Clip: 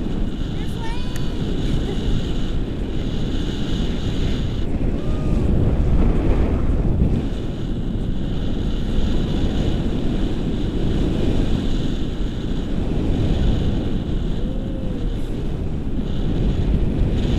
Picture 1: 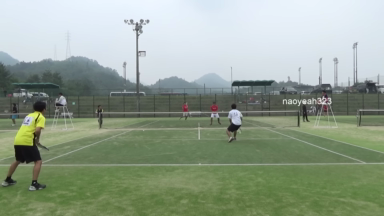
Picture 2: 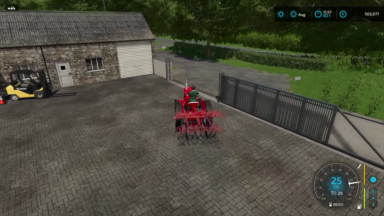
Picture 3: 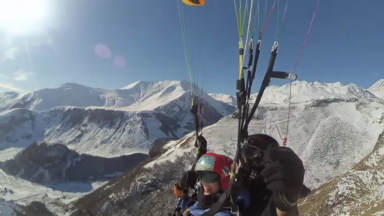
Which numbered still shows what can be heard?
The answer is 3